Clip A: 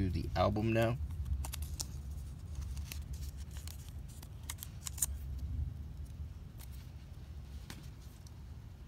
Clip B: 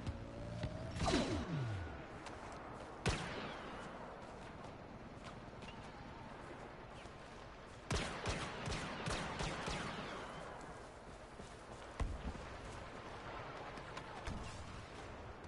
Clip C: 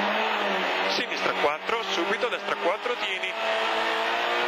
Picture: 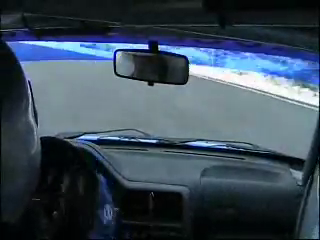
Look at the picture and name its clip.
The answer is C